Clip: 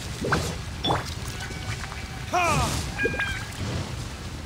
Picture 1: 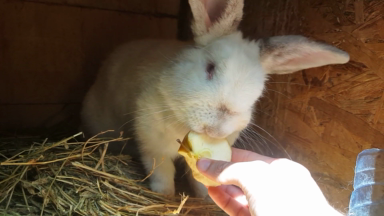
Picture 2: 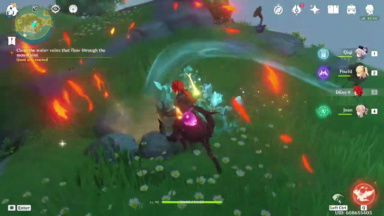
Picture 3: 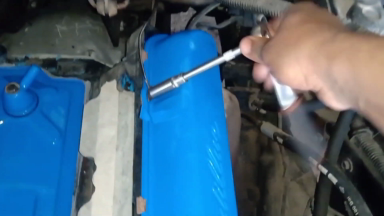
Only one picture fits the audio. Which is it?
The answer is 2